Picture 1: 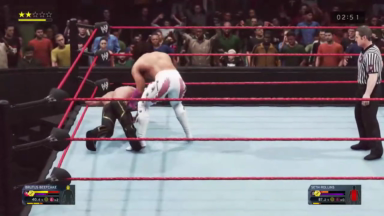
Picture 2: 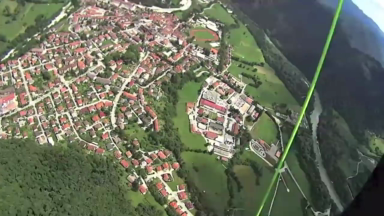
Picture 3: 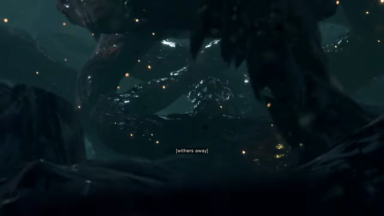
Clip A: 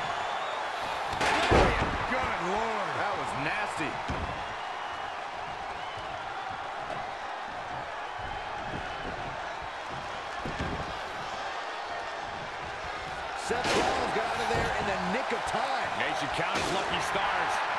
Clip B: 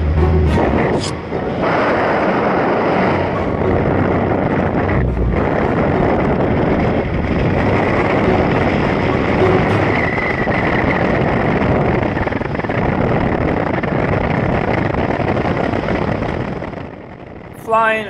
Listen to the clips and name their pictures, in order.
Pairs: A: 1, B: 2